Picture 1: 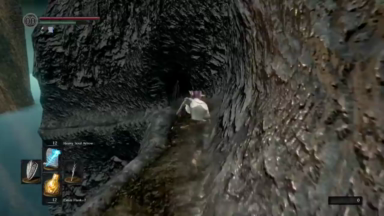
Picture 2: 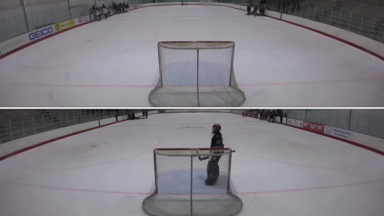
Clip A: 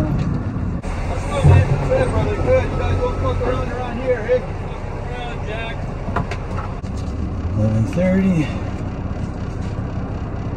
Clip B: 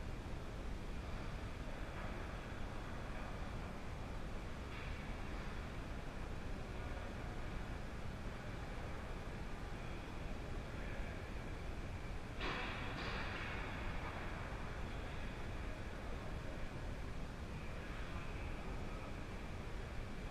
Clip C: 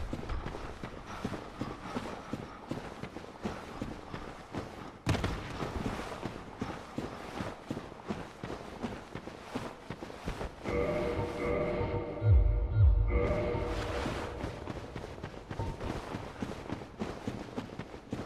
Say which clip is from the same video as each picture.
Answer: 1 C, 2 B